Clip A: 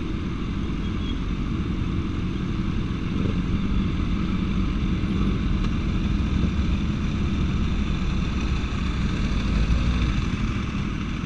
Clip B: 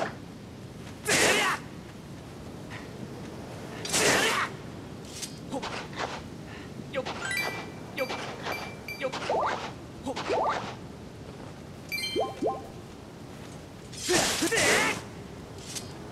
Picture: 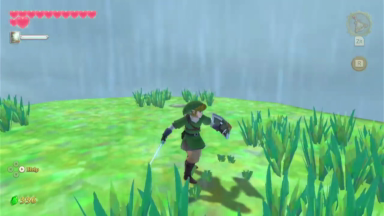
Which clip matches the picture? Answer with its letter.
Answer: B